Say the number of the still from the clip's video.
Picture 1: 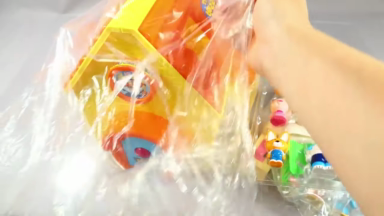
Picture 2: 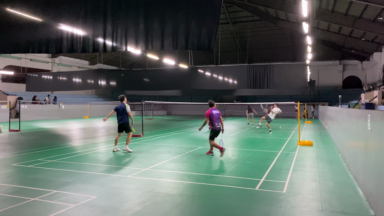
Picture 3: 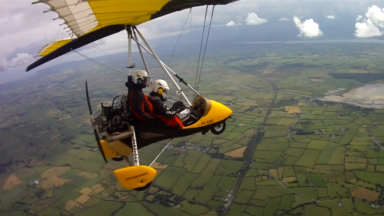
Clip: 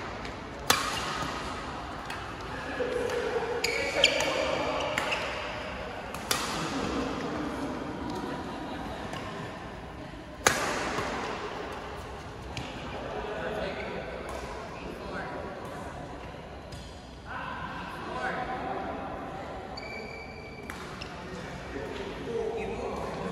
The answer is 2